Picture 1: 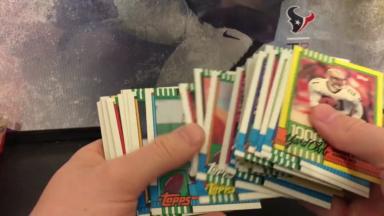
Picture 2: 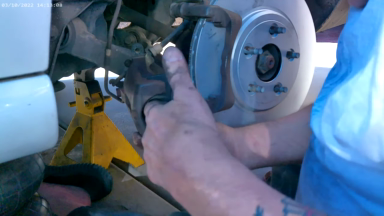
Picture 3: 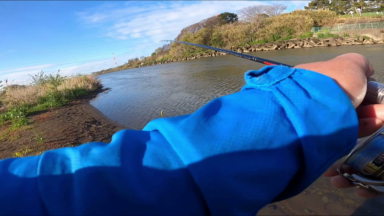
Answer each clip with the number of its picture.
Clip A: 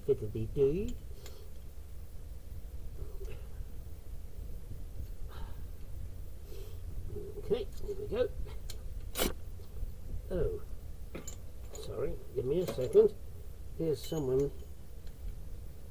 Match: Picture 2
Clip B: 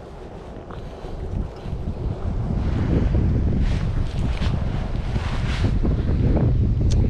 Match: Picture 3